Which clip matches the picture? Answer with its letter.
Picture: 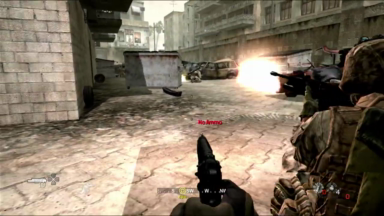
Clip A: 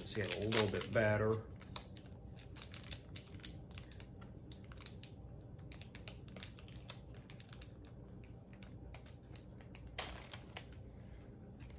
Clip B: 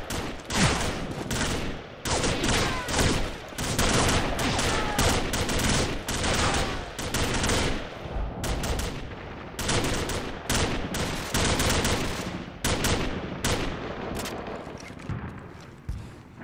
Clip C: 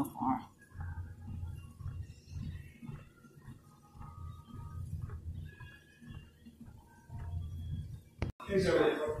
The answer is B